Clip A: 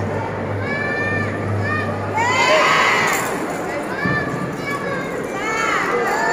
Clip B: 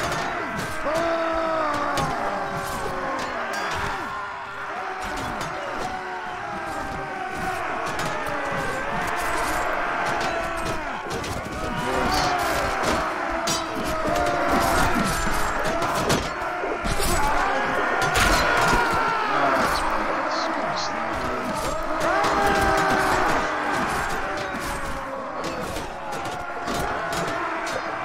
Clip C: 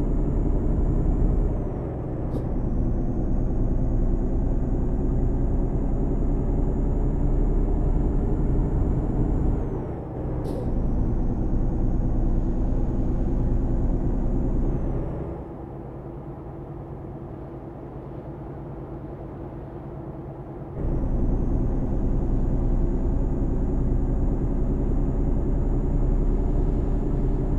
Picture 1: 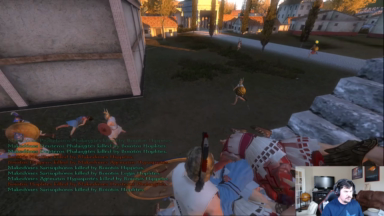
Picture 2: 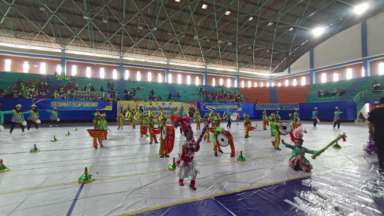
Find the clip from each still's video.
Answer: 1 B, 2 A